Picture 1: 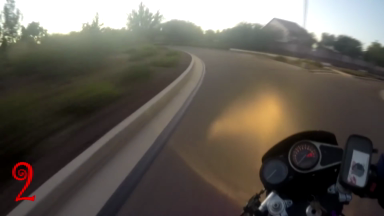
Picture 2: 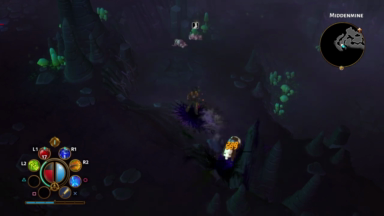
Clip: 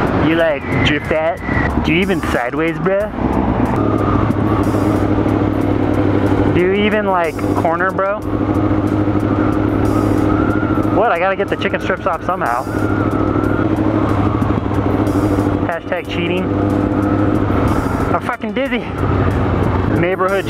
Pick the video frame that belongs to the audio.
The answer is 1